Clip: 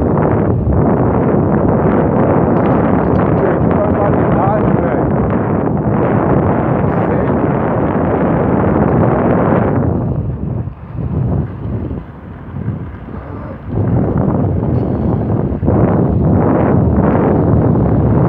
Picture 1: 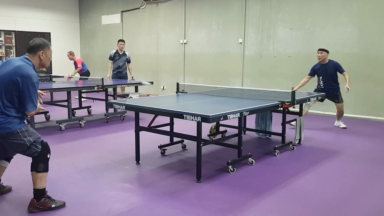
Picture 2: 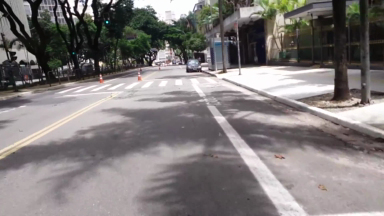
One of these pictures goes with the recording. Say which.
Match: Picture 2